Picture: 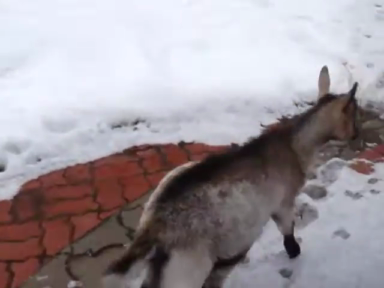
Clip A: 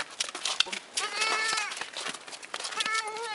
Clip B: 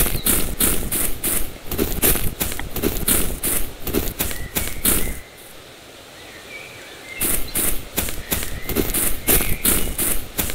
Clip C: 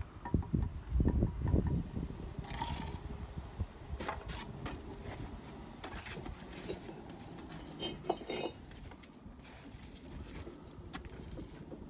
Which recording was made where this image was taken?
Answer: A